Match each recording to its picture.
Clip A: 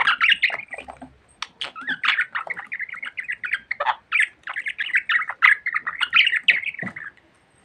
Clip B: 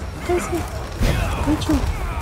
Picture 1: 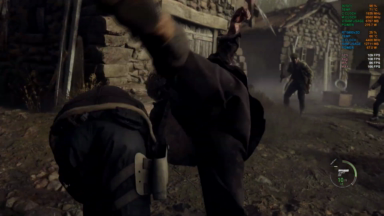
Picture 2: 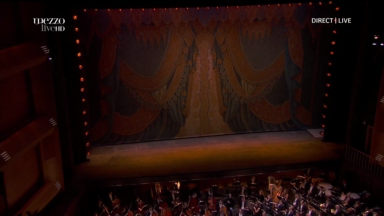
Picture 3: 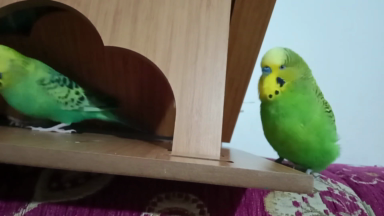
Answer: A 3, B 1